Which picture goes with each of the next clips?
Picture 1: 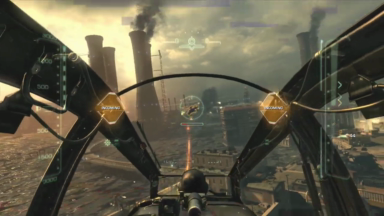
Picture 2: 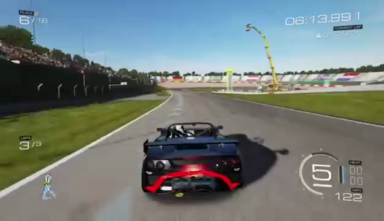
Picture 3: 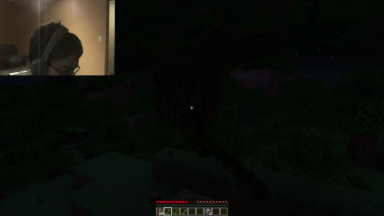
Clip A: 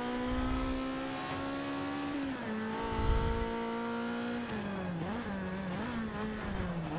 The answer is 2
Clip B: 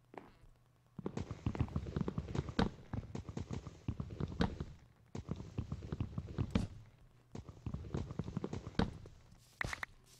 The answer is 3